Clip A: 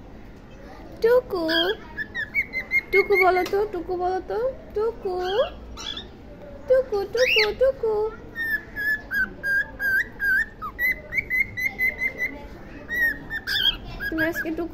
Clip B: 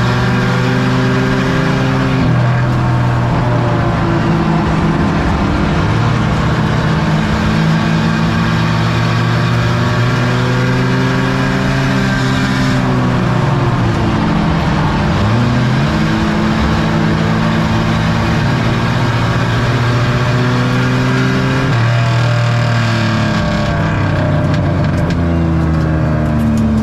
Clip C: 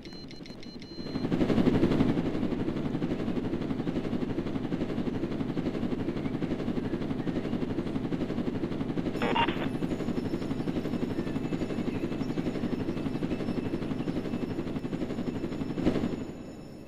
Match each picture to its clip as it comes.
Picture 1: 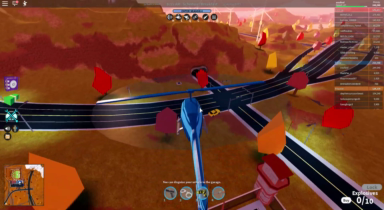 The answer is C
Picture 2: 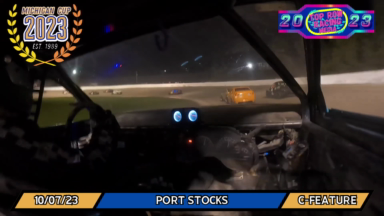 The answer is B